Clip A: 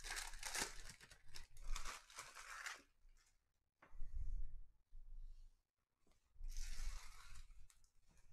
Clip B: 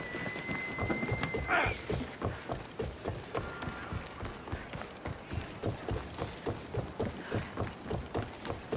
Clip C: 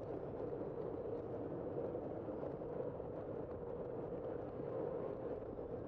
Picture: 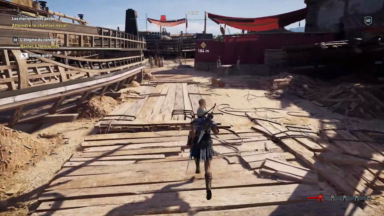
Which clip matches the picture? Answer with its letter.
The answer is B